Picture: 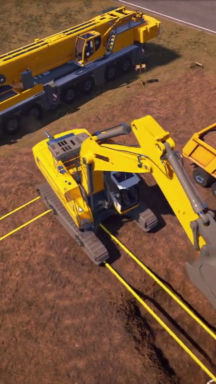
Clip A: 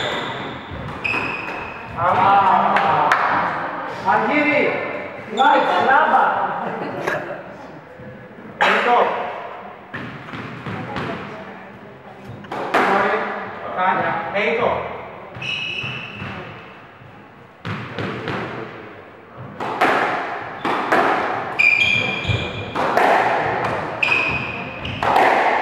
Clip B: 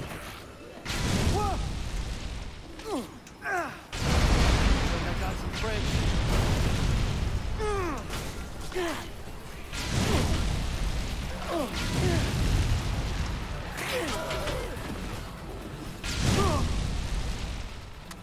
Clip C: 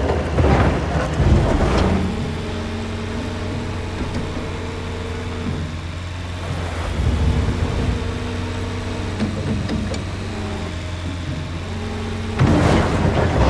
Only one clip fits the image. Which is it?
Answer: C